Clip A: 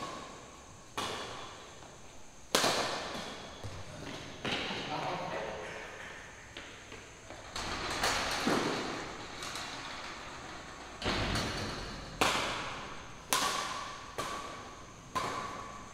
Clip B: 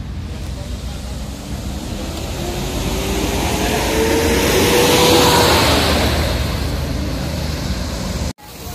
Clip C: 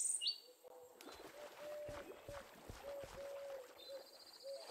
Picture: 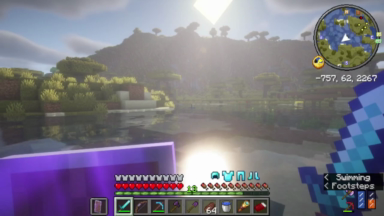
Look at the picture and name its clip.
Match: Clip C